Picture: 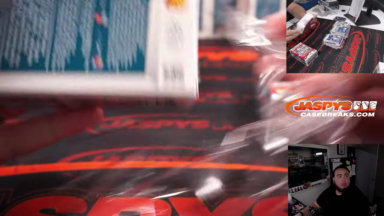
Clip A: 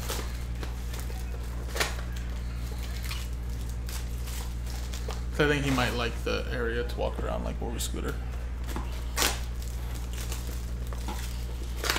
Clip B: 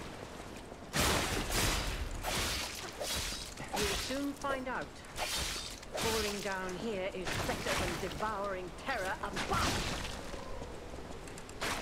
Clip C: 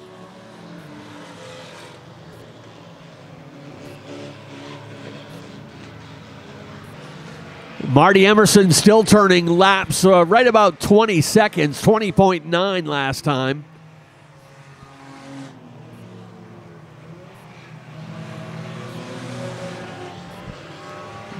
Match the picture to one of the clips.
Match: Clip A